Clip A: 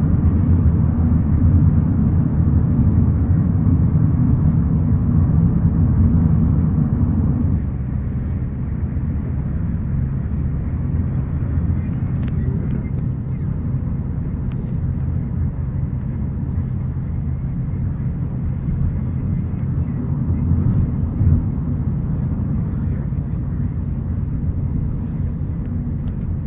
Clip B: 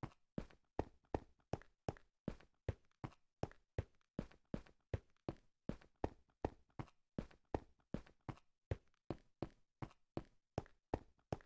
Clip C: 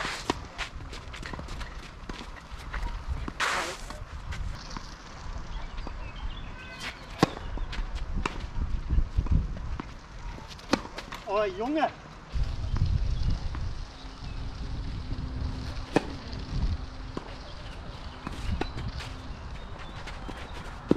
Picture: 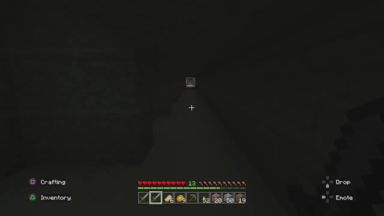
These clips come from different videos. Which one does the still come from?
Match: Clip B